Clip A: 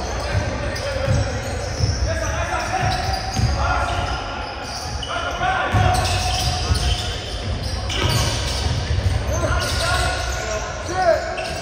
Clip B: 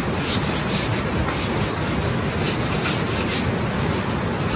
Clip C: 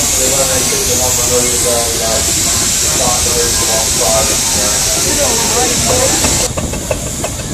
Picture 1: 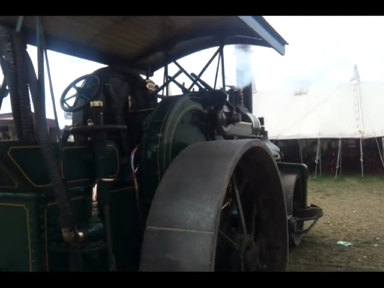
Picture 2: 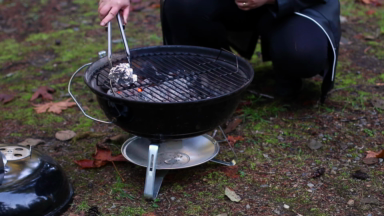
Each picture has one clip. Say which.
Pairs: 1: C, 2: B